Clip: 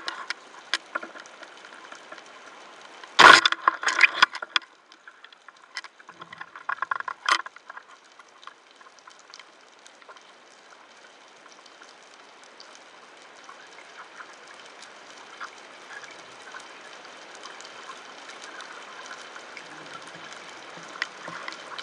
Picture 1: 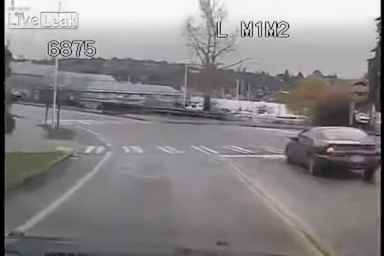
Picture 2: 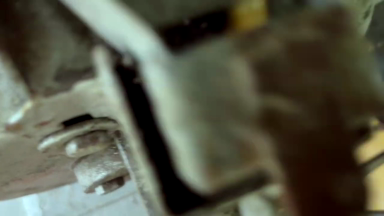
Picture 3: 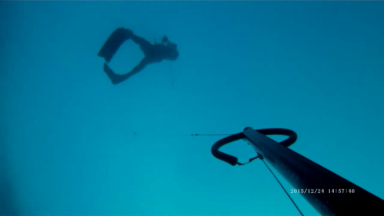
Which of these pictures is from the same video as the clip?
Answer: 3